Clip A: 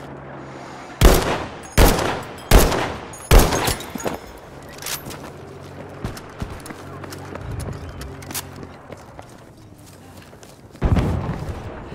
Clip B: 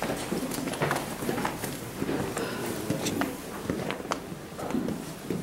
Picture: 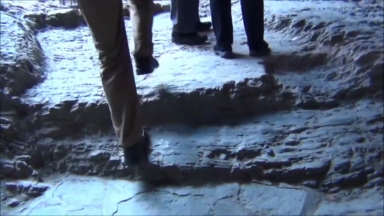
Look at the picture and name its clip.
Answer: B